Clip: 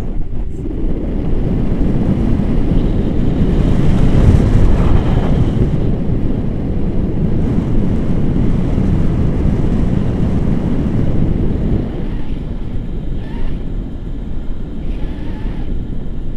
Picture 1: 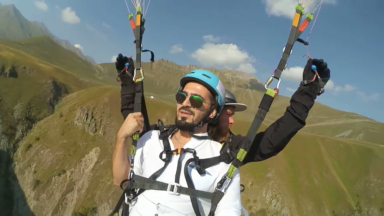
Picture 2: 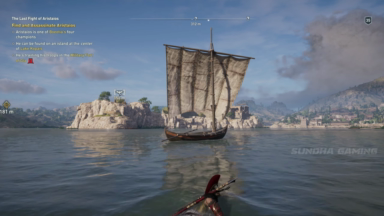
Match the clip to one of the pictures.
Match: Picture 1